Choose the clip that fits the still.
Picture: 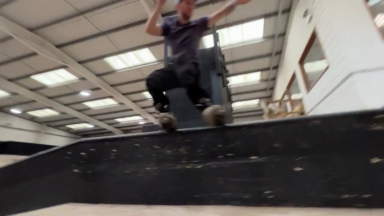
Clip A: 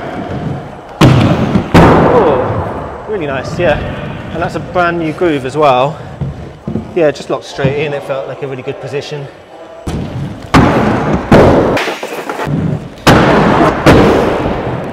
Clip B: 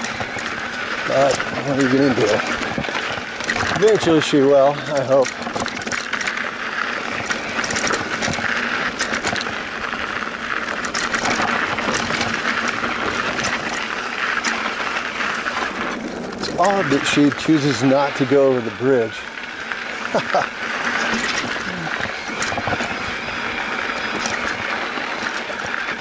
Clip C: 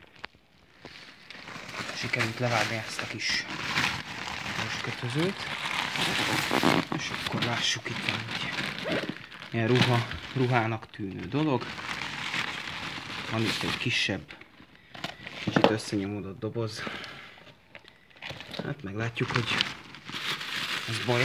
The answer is A